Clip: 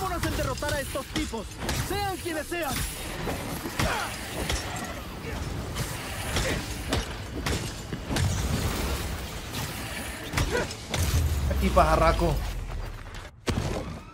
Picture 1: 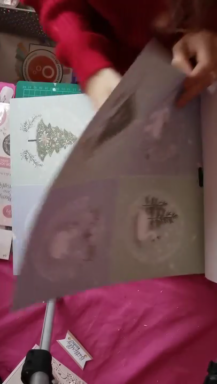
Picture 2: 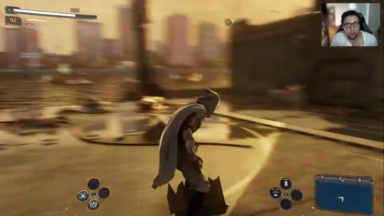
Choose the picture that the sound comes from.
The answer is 2